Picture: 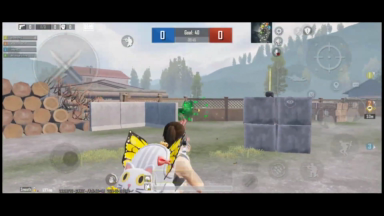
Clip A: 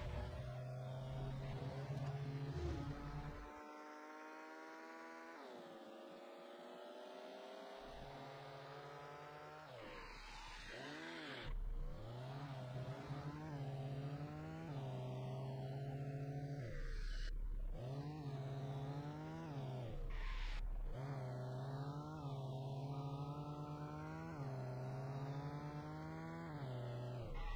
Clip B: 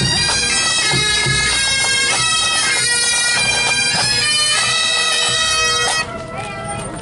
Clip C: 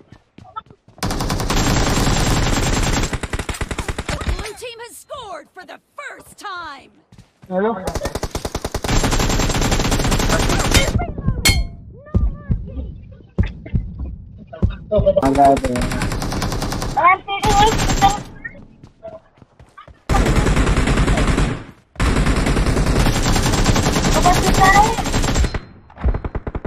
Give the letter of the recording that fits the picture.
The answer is C